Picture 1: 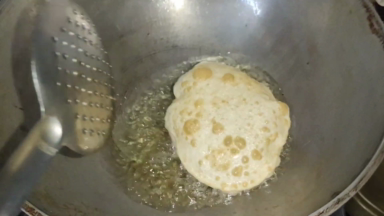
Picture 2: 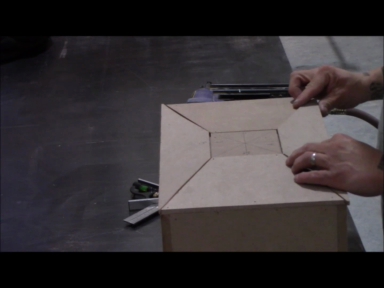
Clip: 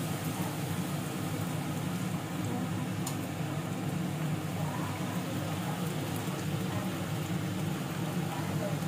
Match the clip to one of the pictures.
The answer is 1